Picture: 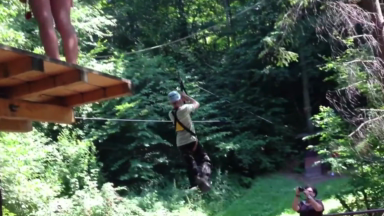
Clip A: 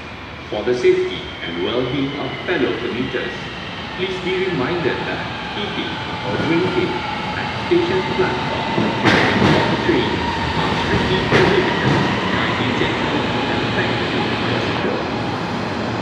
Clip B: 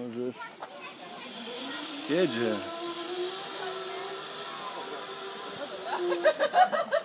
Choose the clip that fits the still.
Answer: B